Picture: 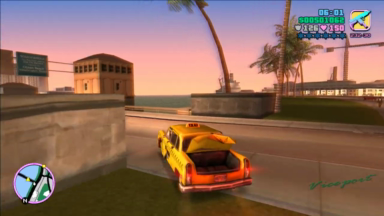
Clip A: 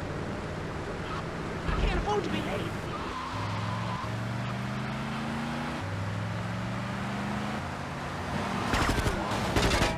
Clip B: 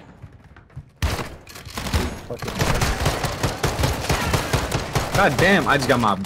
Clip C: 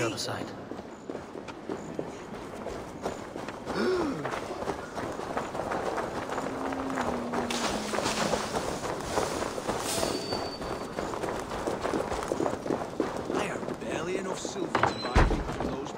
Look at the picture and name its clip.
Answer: A